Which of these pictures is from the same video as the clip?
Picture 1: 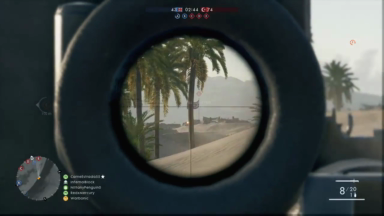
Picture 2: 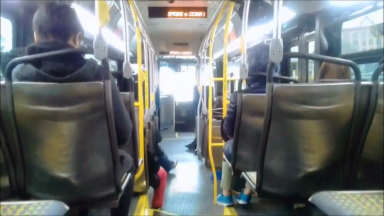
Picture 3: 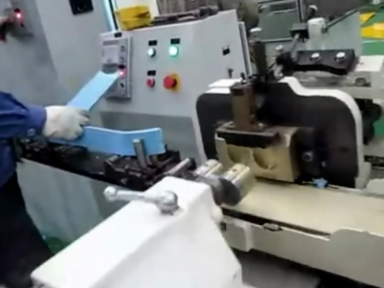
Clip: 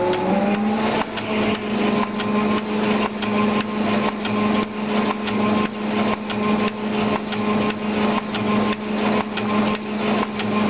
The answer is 3